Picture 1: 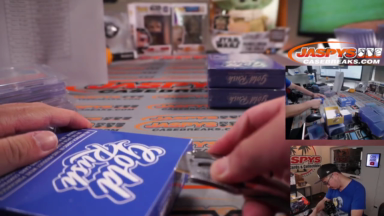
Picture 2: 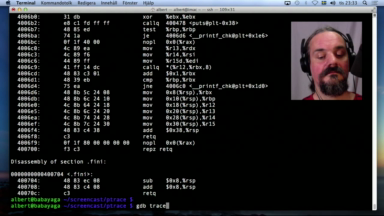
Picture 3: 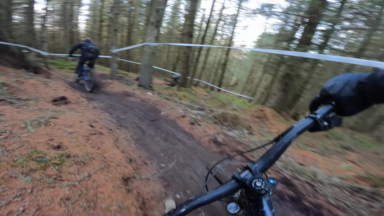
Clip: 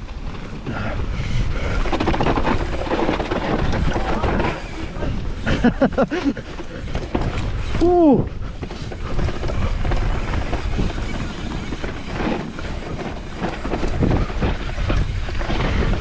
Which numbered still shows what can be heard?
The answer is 3